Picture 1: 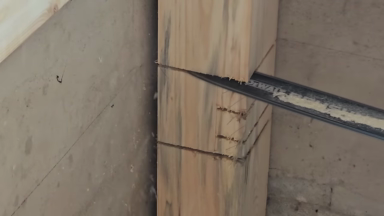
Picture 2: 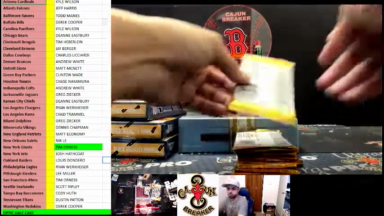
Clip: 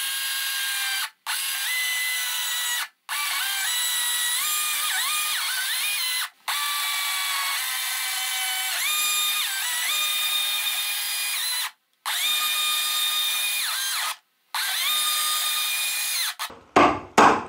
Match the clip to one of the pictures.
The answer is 1